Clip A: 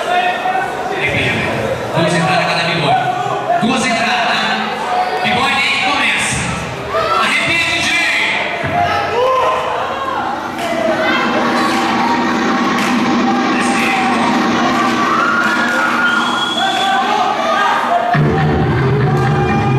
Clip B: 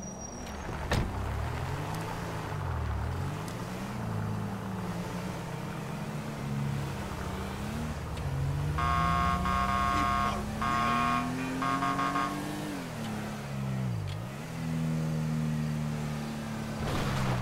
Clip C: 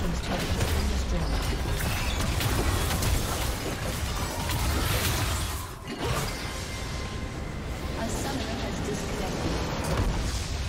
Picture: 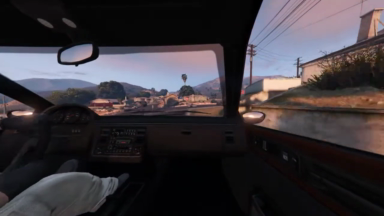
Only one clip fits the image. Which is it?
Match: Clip B